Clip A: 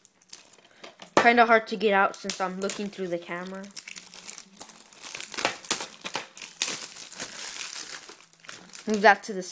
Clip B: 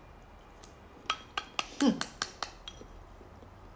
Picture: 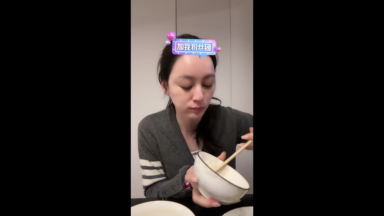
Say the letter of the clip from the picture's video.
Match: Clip B